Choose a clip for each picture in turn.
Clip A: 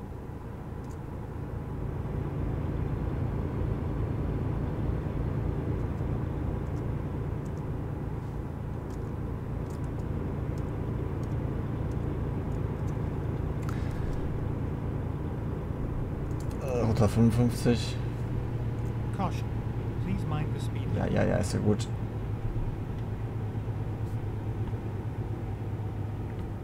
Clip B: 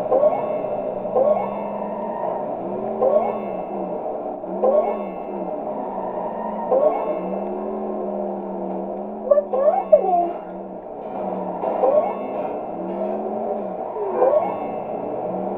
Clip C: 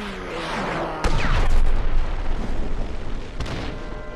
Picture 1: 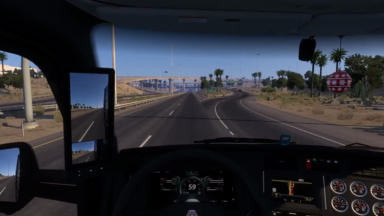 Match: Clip A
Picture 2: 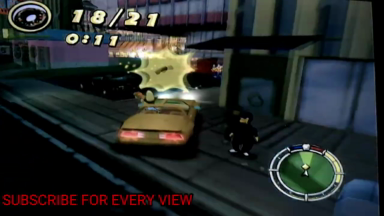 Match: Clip B